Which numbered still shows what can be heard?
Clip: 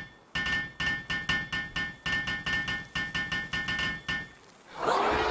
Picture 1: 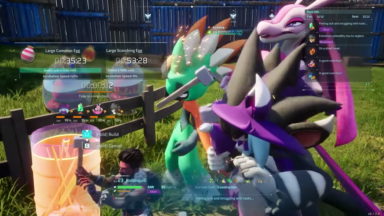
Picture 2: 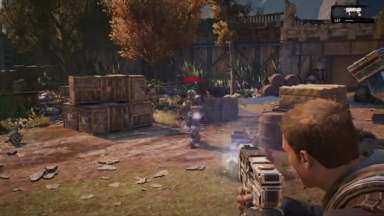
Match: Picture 1